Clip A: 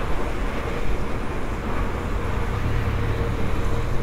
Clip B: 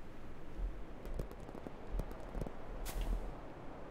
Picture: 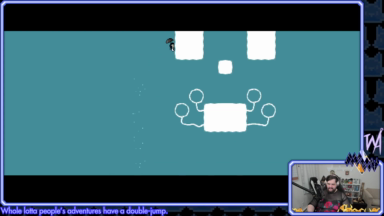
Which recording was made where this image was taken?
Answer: B